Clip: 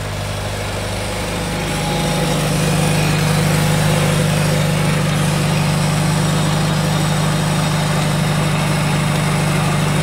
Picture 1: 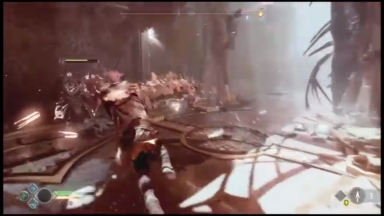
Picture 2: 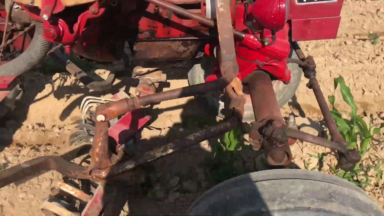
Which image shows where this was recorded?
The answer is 2